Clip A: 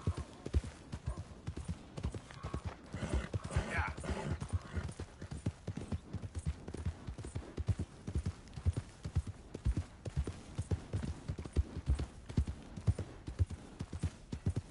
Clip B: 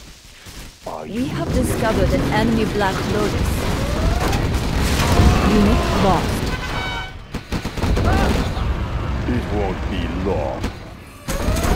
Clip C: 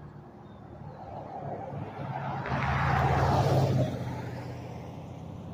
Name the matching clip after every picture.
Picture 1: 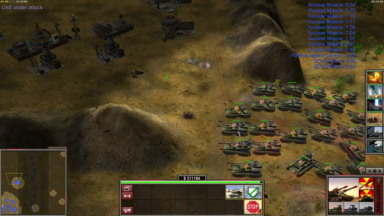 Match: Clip B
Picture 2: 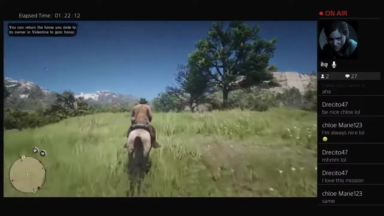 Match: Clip A